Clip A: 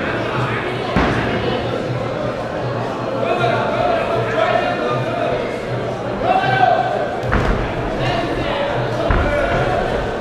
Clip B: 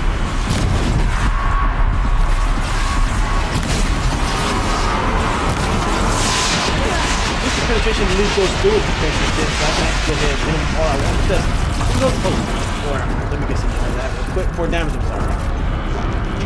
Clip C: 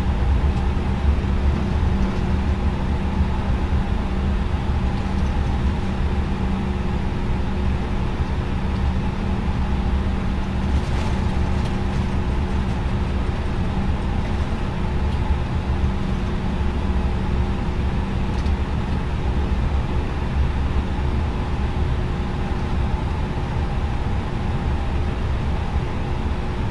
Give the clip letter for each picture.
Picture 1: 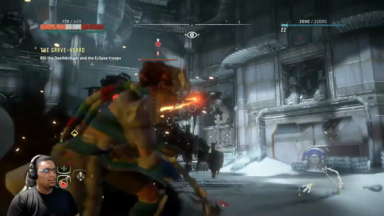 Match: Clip B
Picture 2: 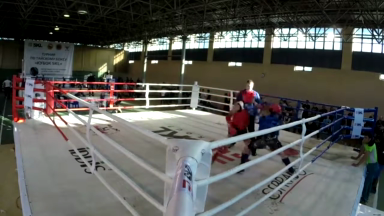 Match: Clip A